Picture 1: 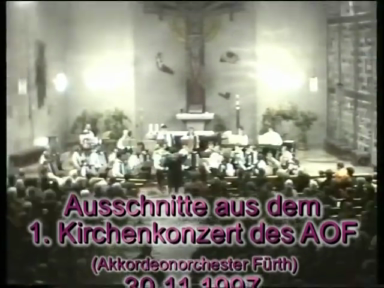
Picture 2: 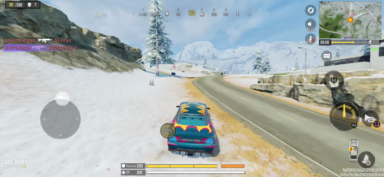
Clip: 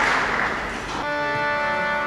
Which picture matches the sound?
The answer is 1